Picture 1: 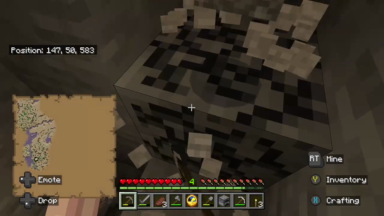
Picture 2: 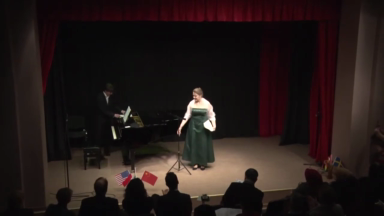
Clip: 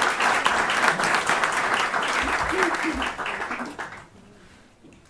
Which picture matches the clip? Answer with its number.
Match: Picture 2